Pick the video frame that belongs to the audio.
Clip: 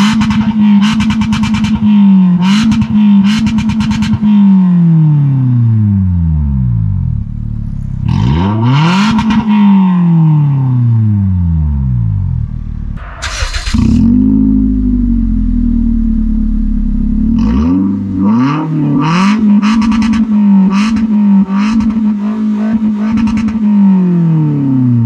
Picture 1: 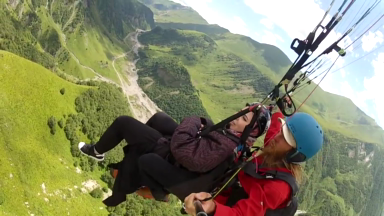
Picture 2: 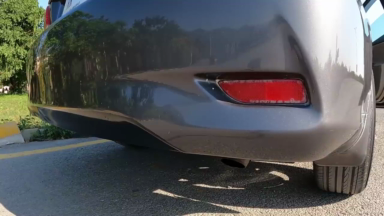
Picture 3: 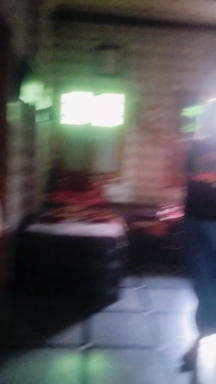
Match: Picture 2